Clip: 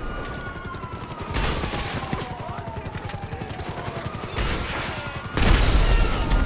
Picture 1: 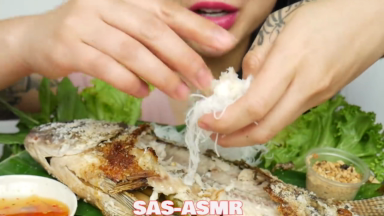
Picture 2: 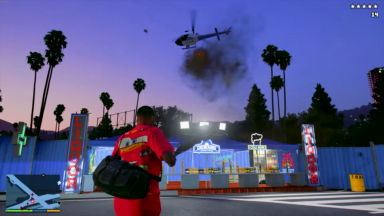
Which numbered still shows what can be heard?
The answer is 2